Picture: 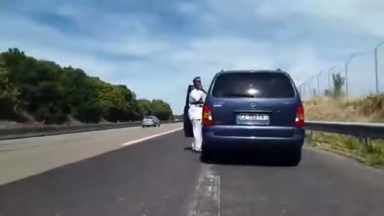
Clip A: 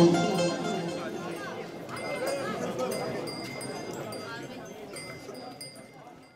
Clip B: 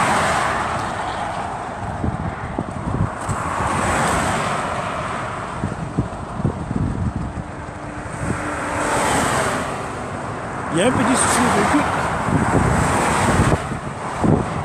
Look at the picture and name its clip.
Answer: B